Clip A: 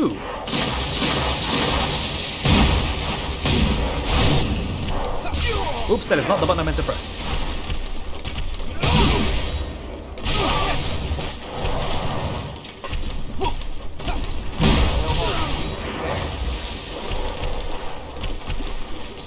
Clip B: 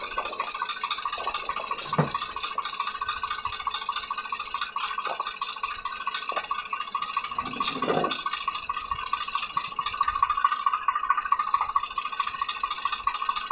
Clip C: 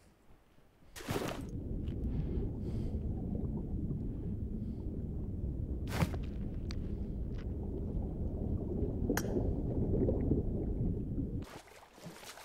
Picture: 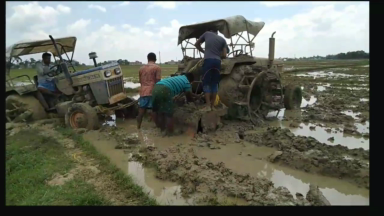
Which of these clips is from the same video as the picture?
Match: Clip B